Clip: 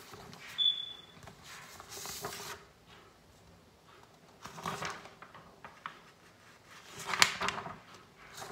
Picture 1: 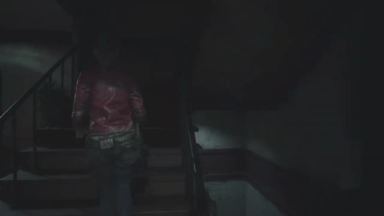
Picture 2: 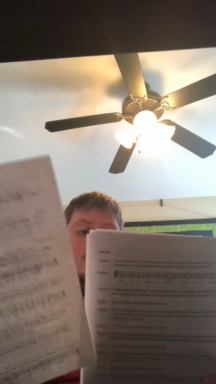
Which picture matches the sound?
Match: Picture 2